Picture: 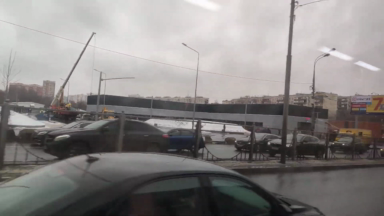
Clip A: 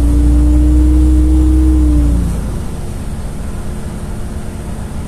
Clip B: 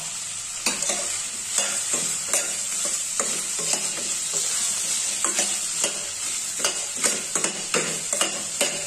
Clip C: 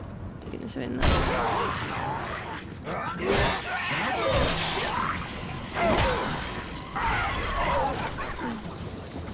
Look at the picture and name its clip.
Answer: A